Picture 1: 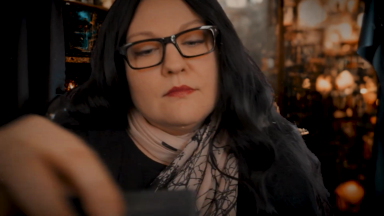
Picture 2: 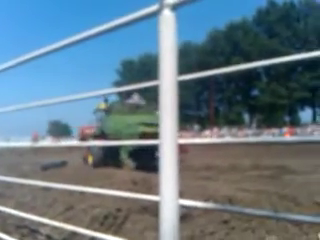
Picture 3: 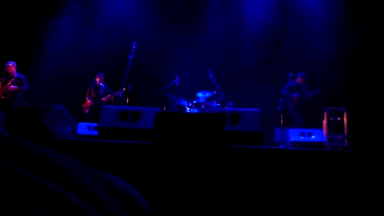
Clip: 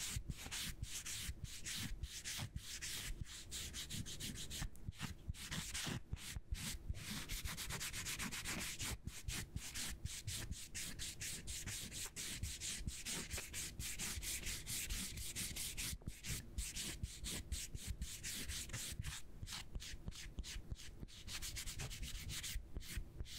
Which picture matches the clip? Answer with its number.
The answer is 1